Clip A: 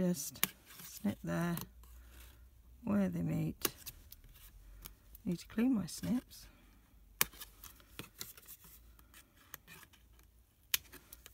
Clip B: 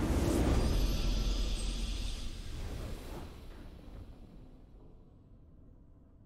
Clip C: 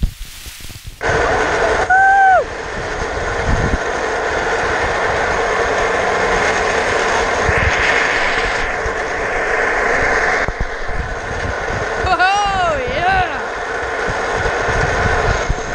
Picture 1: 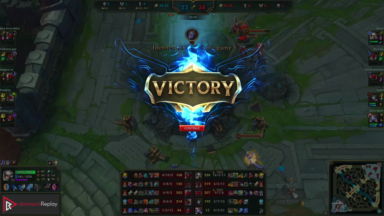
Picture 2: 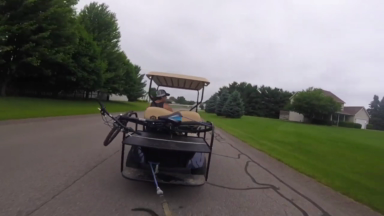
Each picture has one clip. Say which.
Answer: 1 B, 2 C